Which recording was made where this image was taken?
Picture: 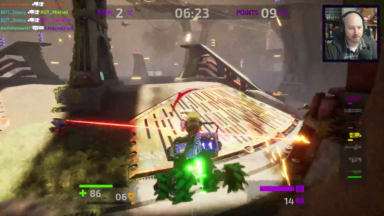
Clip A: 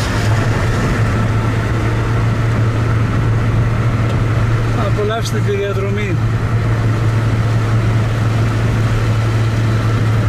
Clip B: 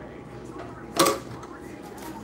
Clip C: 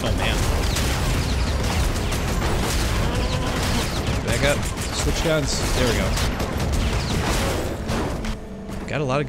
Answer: C